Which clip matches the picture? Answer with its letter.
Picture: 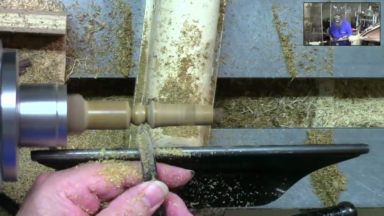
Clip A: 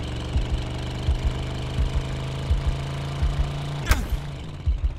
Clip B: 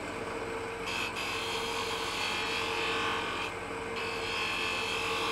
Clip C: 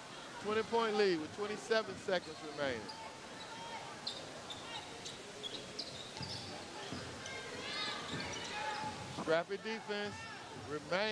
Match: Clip B